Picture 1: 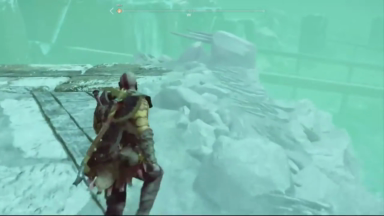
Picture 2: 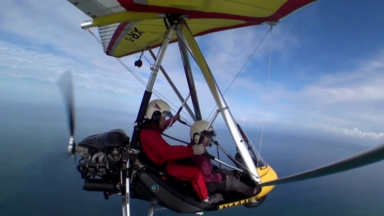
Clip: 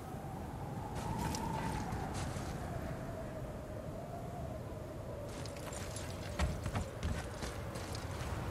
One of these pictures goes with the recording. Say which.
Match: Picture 1